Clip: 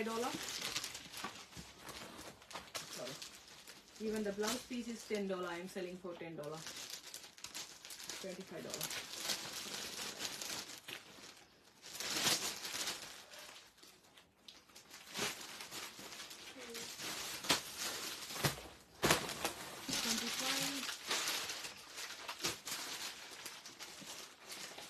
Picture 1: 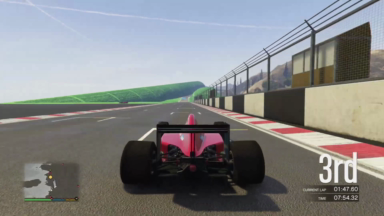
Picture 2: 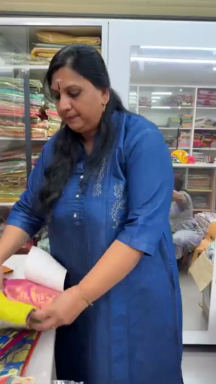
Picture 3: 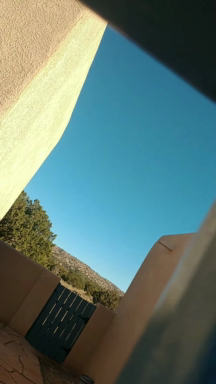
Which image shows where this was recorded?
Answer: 2